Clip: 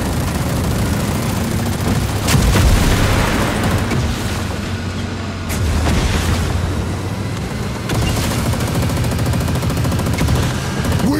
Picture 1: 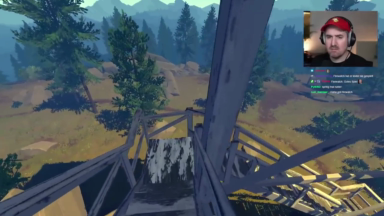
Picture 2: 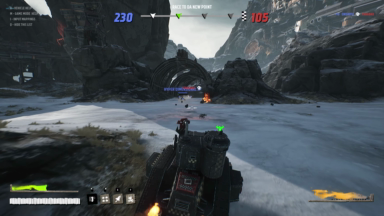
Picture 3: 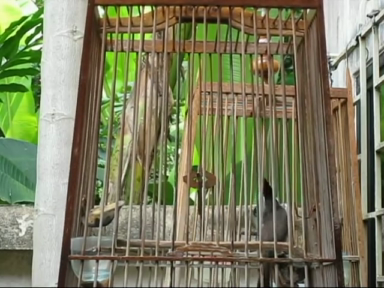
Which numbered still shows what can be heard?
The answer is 2